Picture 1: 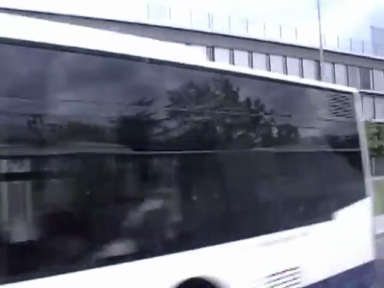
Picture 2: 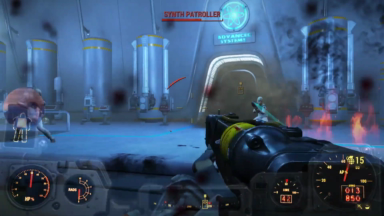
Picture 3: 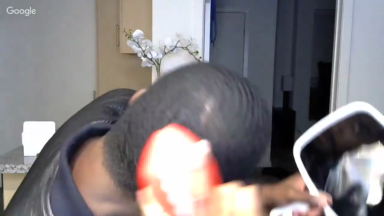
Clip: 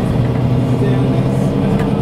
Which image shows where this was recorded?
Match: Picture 1